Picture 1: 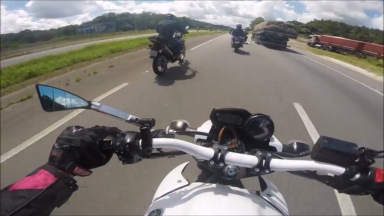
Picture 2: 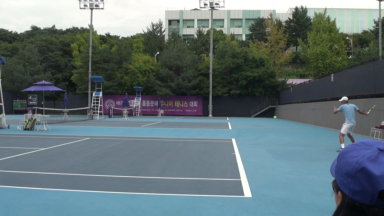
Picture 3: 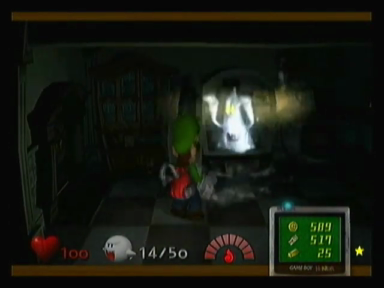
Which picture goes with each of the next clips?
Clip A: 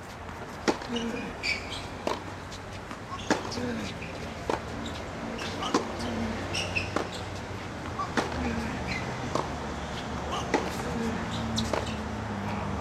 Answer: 2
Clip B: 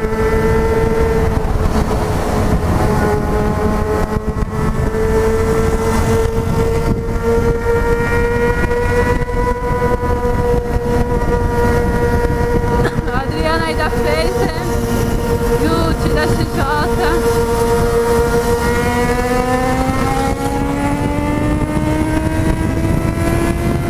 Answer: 1